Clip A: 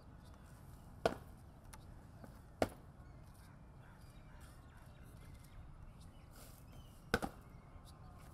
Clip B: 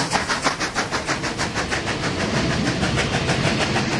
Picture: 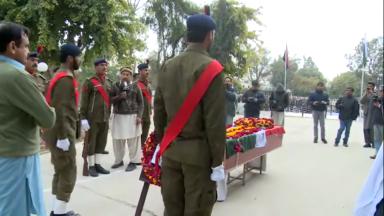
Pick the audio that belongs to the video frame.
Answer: A